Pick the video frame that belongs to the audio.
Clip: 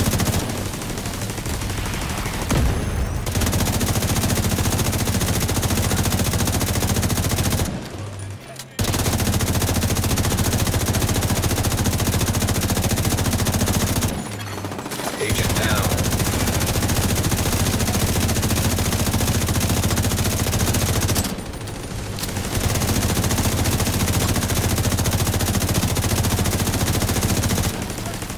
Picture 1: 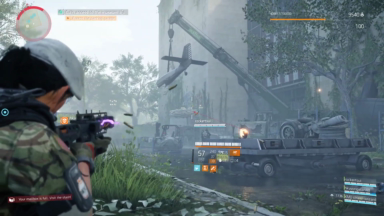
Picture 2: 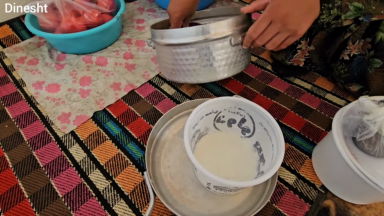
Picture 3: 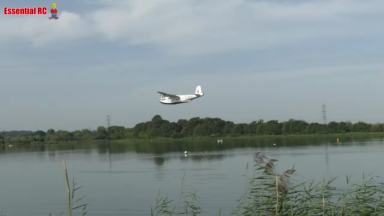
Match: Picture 1